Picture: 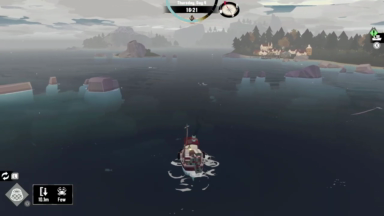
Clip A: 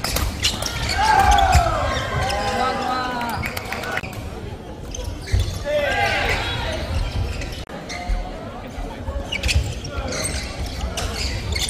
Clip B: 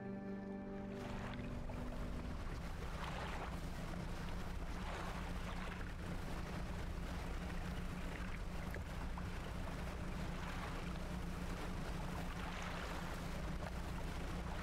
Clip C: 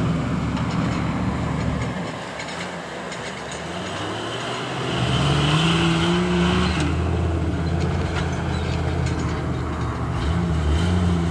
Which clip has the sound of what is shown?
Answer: B